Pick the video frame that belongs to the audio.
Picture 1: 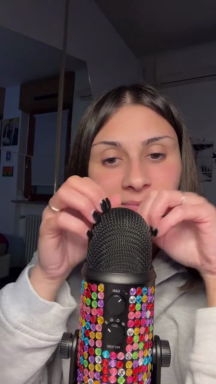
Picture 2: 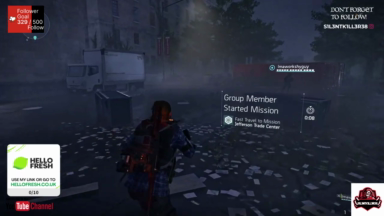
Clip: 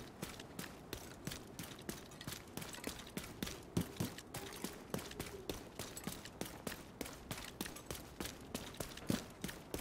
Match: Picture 2